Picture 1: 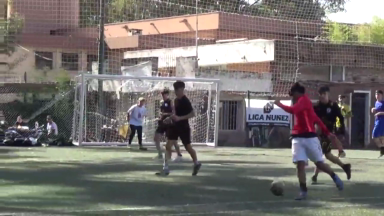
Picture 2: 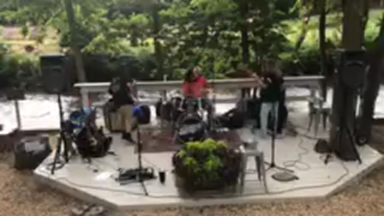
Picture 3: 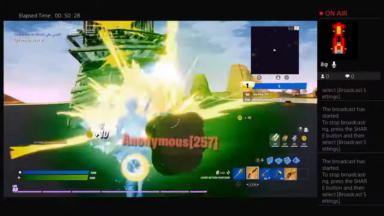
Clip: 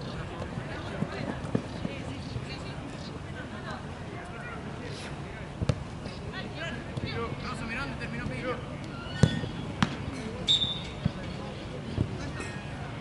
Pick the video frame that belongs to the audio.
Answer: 1